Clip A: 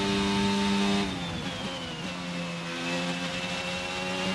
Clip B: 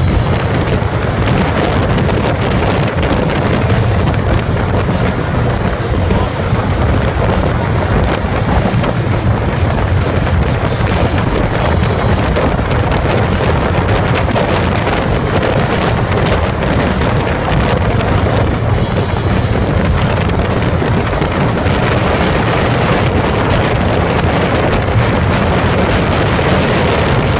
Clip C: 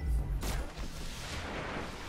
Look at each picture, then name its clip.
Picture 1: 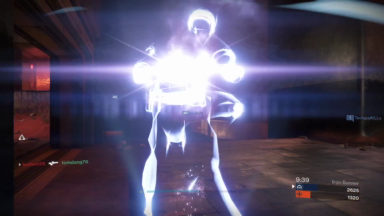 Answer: C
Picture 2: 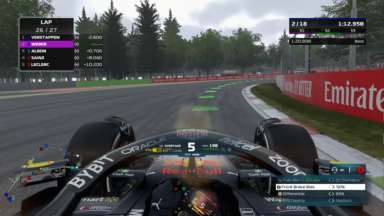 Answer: A